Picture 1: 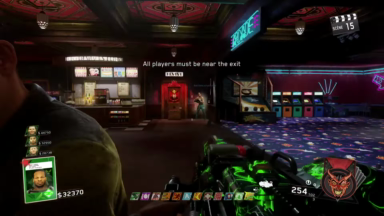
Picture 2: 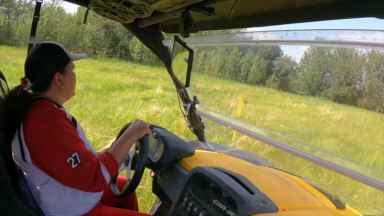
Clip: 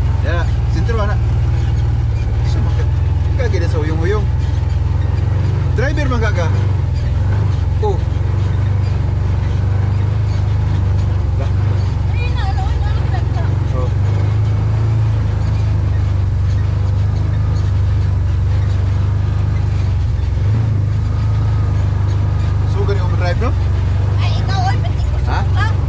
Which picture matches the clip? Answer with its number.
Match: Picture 2